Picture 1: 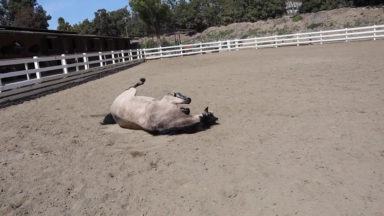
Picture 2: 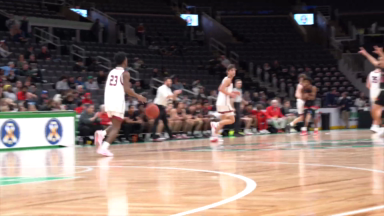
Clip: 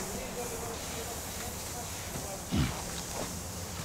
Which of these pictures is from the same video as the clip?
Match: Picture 1